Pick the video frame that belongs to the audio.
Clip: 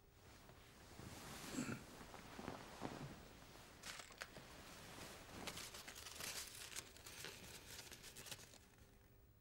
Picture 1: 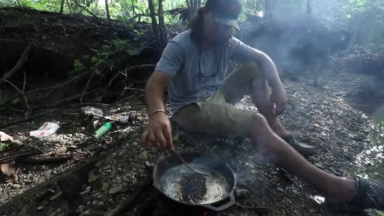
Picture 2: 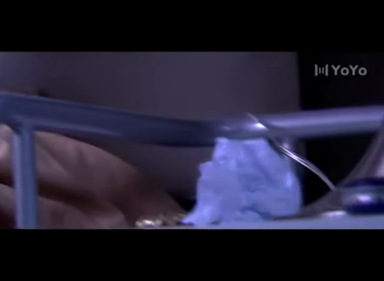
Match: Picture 2